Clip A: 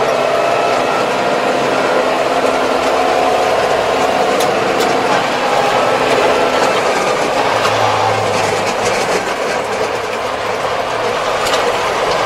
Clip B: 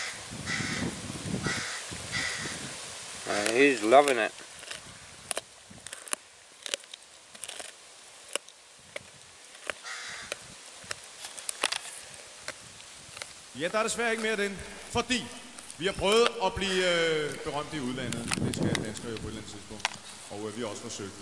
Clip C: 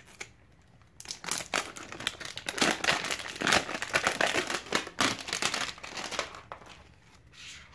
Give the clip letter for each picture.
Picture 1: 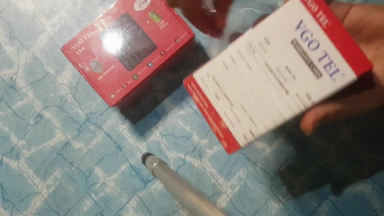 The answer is C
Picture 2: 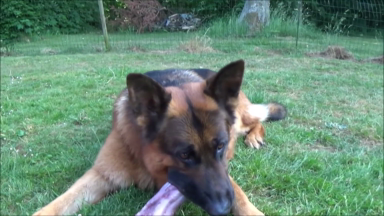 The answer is B